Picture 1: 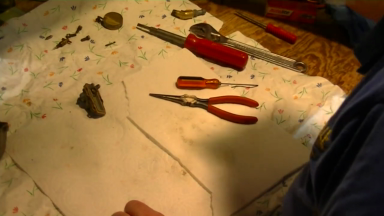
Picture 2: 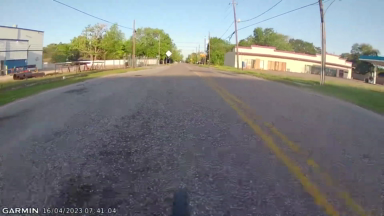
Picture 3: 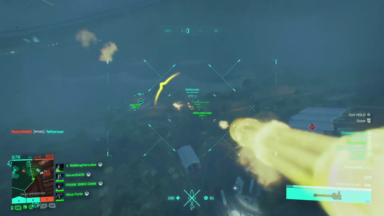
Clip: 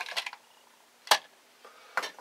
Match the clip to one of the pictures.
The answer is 1